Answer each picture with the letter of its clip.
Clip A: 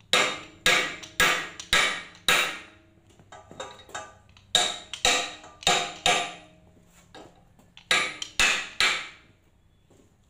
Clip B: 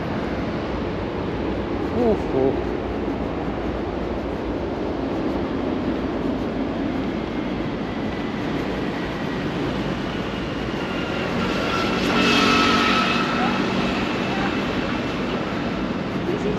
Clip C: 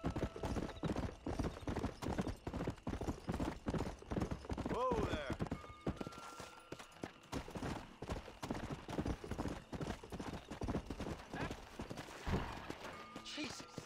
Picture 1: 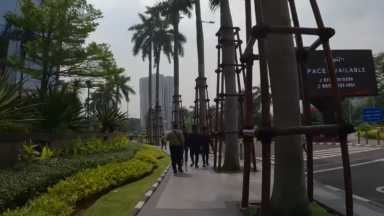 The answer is B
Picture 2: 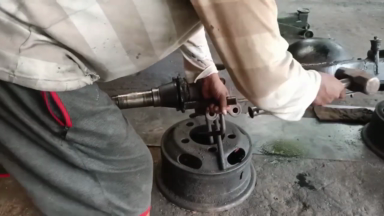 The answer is A